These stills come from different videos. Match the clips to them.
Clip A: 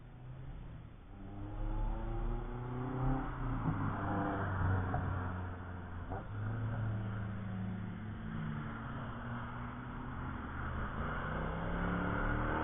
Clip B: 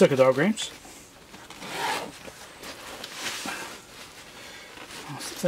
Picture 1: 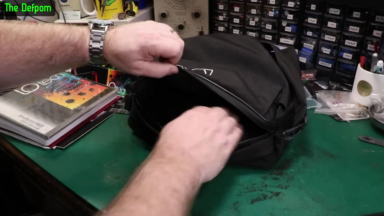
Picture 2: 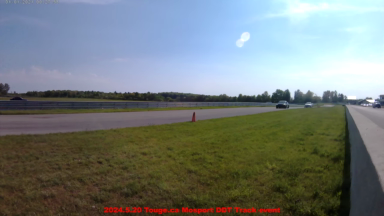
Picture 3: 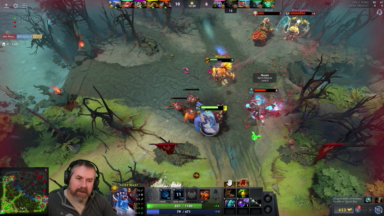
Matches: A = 2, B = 1